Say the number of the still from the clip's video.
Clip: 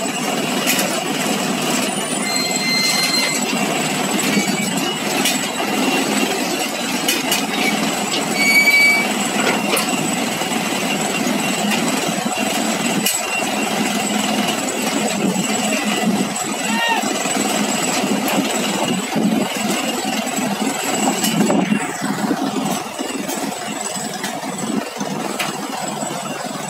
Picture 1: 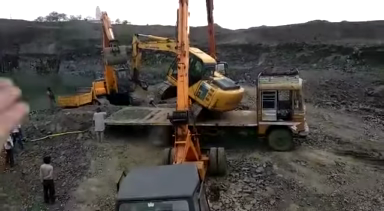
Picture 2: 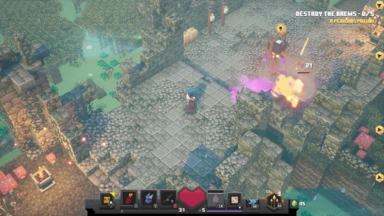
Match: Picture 1